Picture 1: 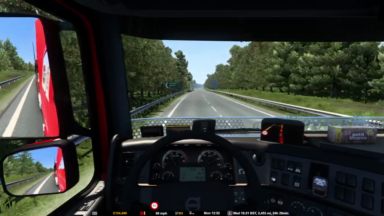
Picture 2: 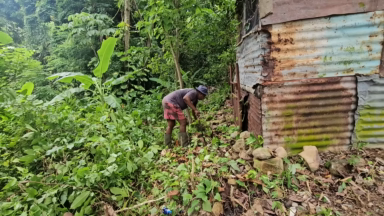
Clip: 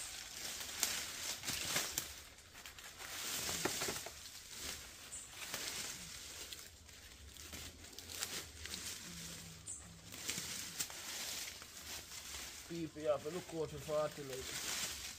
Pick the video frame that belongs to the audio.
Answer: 2